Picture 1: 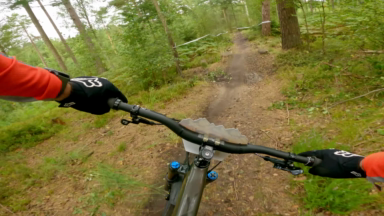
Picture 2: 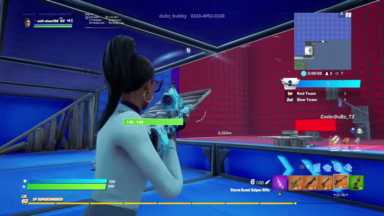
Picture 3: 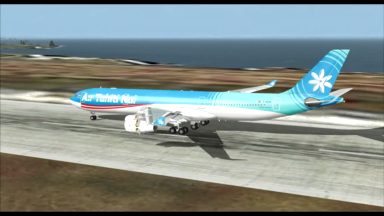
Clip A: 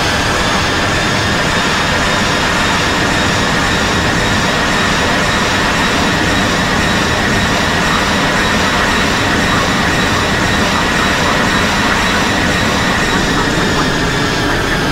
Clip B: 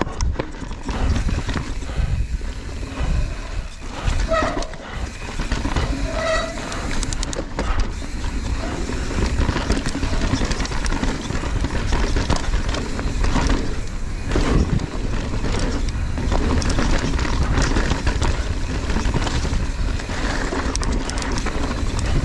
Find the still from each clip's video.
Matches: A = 3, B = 1